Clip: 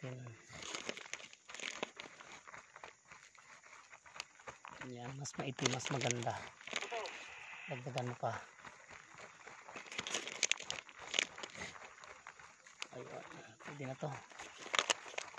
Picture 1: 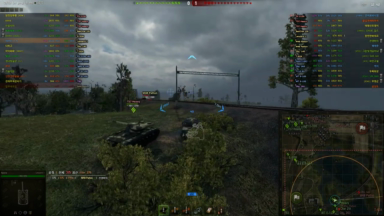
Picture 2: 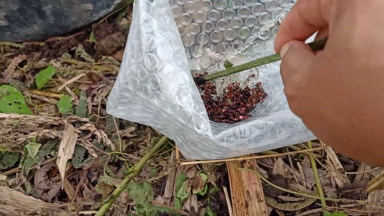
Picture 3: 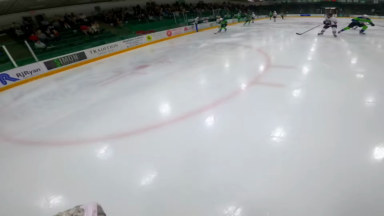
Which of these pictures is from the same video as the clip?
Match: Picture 2